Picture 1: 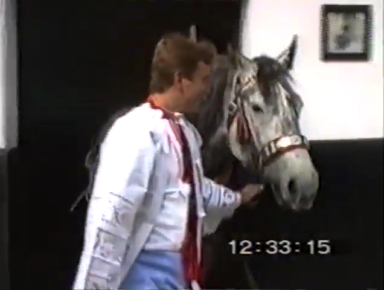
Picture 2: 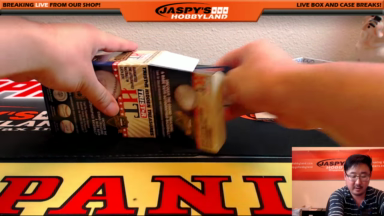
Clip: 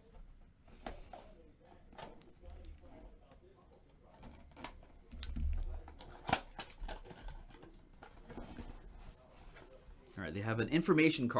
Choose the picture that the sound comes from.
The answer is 2